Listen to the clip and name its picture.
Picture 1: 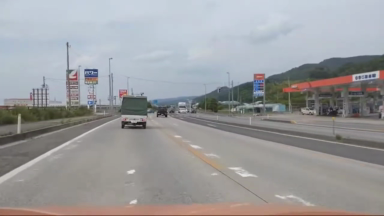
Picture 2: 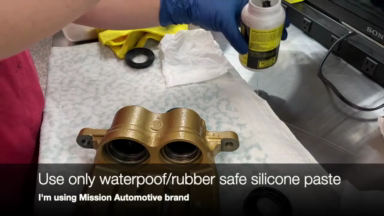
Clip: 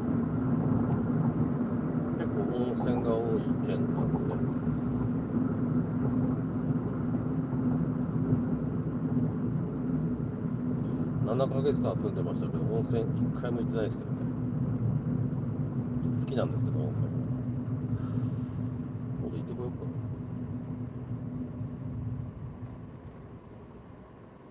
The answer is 1